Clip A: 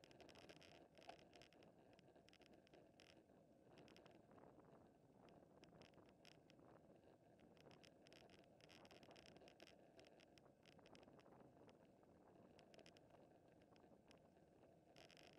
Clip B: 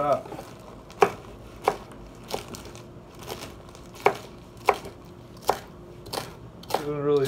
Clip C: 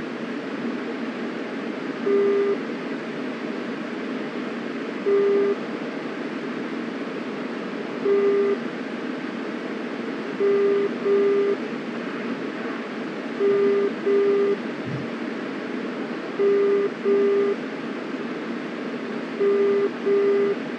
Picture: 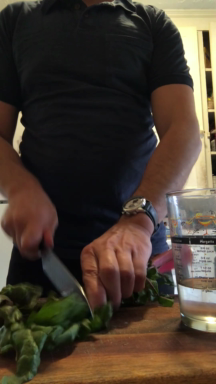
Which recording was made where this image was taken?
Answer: B